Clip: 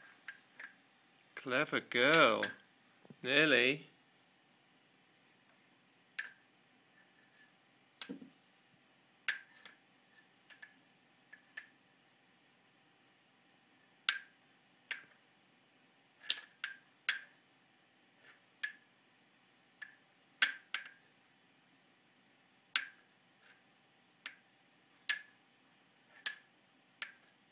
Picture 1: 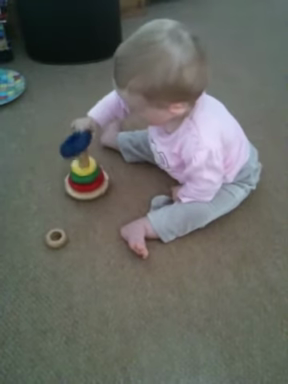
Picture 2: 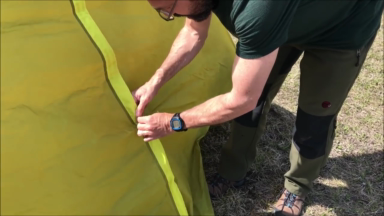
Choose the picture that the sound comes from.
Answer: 1